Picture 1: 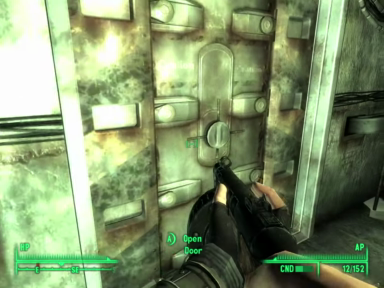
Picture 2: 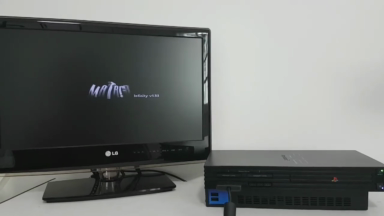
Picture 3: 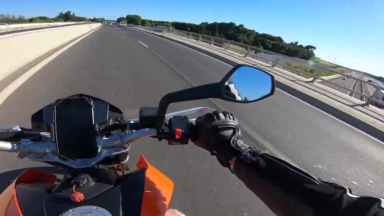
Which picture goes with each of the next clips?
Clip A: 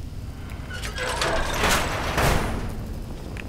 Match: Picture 1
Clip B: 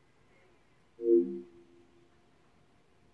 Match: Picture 2